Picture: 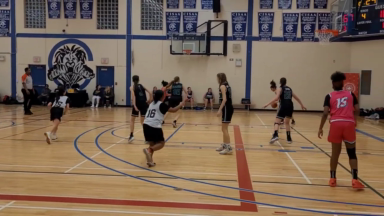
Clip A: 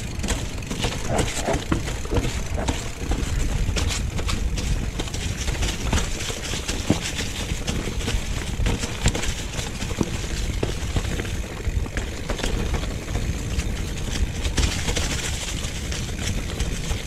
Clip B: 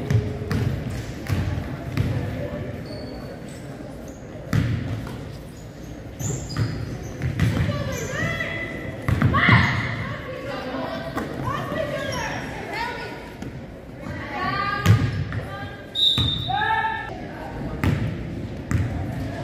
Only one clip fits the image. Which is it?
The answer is B